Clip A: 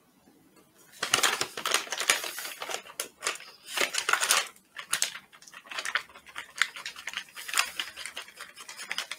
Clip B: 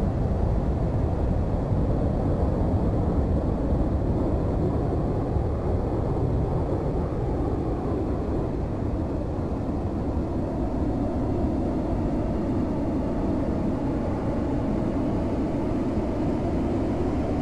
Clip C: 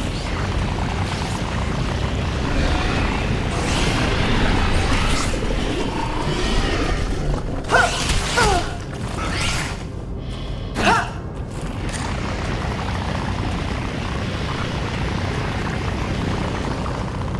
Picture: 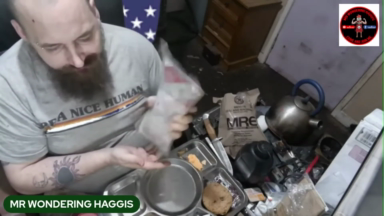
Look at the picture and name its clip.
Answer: A